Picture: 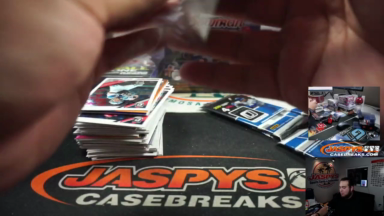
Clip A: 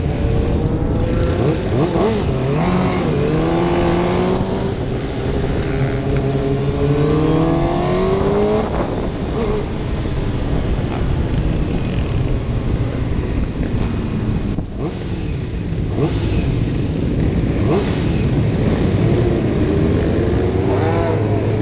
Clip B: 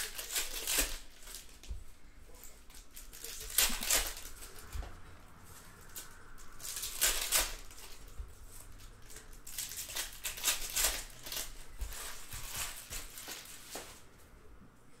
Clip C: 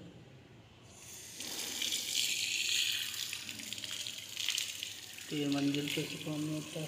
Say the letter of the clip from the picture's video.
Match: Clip B